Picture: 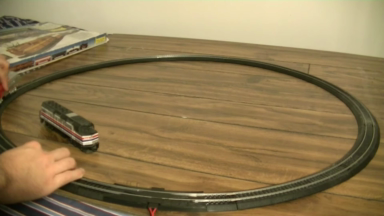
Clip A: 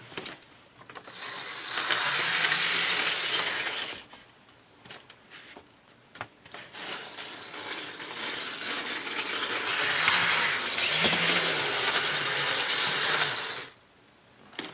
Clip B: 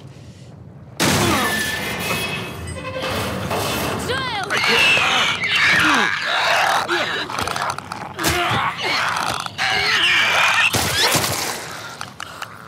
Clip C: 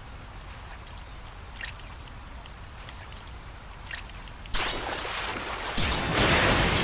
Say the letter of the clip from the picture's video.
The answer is A